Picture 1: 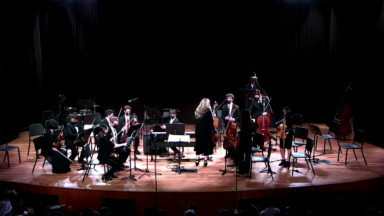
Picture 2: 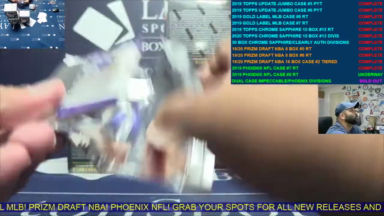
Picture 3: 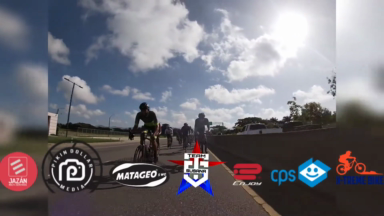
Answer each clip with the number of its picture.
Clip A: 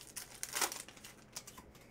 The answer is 2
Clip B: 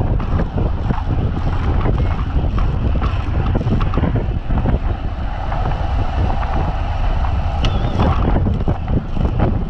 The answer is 3